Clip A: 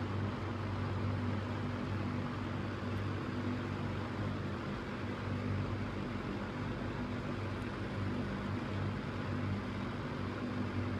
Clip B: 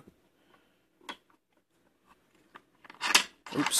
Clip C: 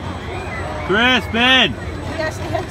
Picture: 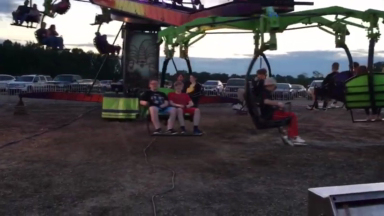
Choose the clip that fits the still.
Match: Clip C